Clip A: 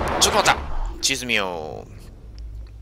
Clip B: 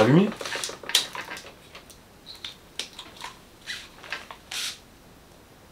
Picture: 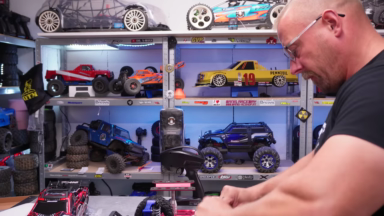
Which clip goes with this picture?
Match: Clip B